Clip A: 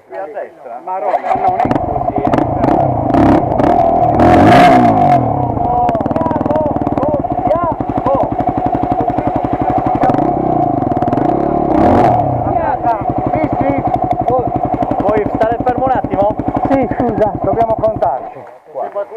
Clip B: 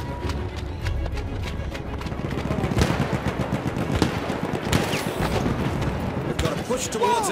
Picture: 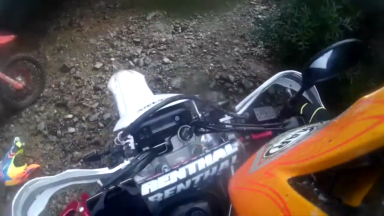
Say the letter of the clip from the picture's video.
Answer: A